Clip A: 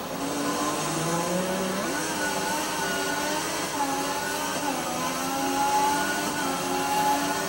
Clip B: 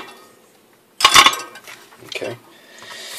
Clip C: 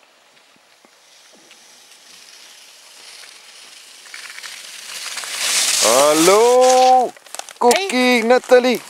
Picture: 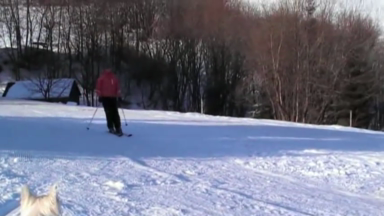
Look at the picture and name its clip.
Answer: C